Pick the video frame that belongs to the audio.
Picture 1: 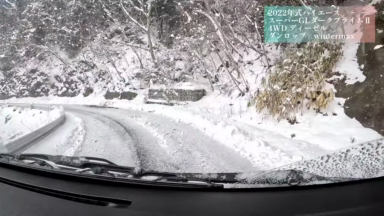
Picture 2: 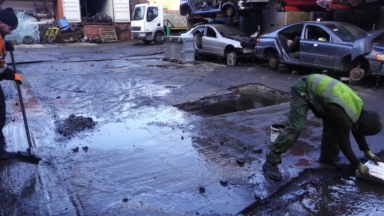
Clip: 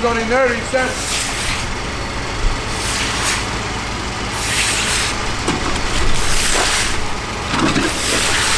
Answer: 2